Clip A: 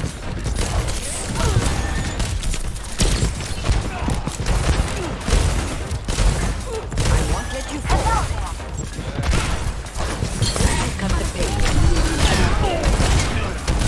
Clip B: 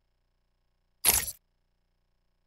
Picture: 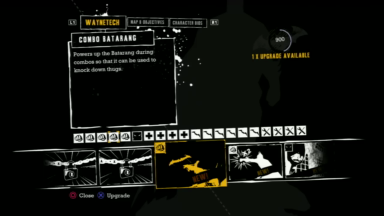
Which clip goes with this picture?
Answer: B